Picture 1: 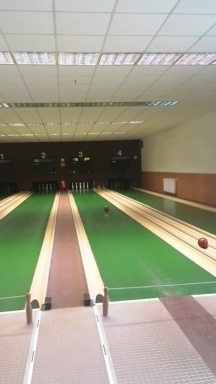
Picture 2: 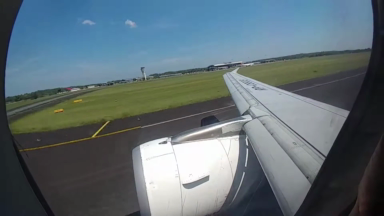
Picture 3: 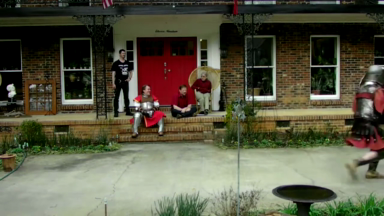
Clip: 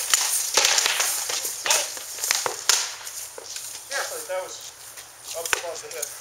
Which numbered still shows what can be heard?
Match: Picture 3